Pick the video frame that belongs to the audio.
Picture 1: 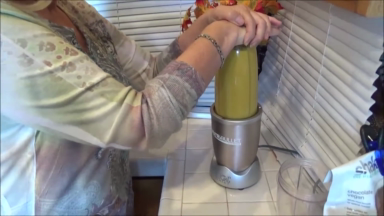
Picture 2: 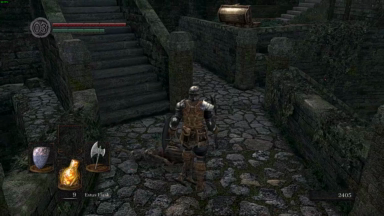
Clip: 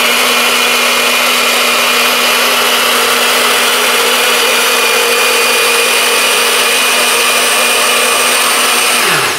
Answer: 1